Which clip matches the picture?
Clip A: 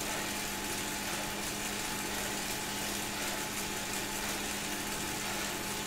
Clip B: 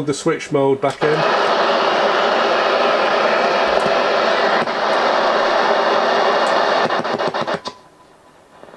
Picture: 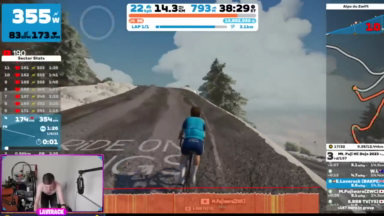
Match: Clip A